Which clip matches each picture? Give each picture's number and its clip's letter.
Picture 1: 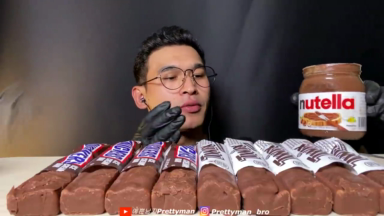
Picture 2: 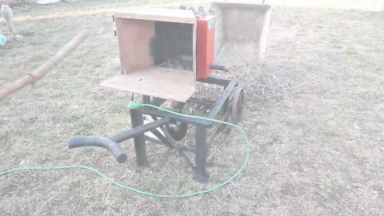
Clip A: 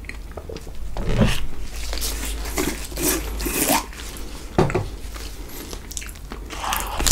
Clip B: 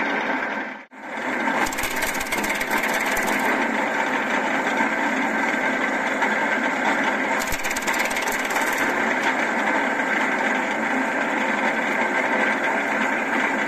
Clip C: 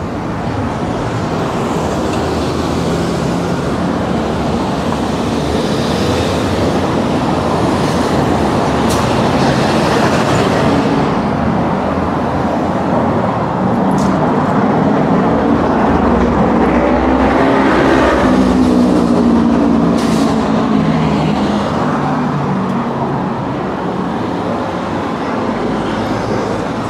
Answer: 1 A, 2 B